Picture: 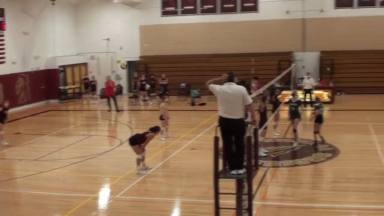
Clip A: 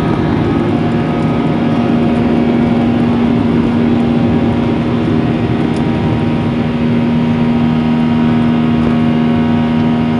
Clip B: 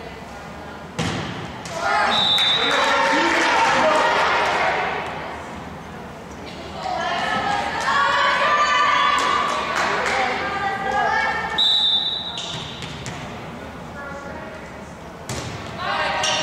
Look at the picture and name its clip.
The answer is B